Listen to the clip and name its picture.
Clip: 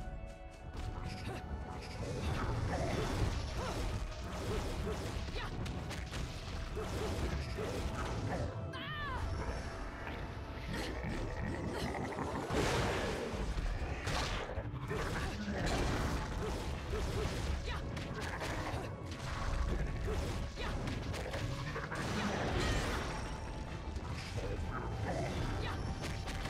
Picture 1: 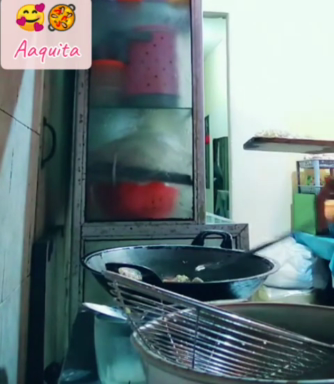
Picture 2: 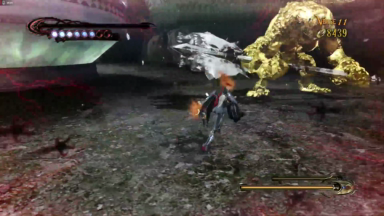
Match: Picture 2